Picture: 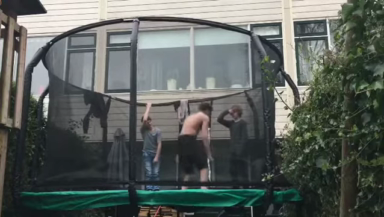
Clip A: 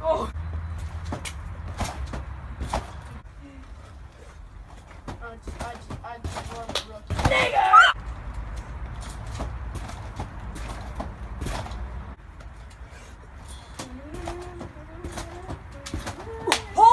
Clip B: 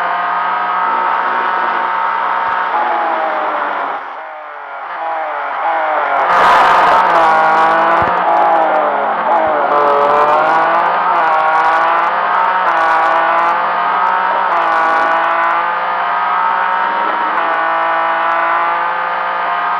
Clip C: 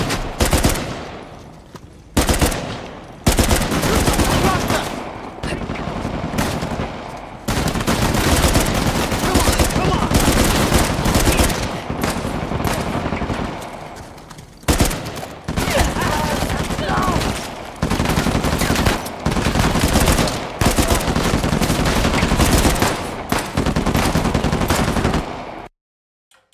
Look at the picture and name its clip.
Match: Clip A